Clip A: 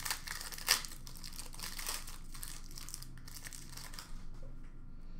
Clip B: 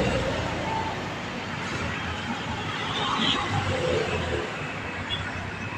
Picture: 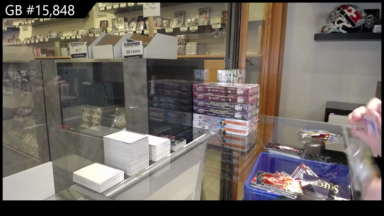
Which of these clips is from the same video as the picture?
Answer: A